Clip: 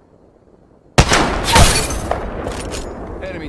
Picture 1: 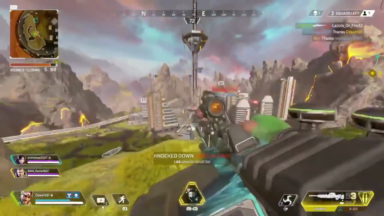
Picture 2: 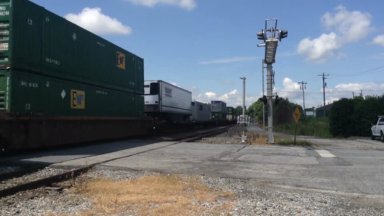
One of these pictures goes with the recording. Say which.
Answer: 1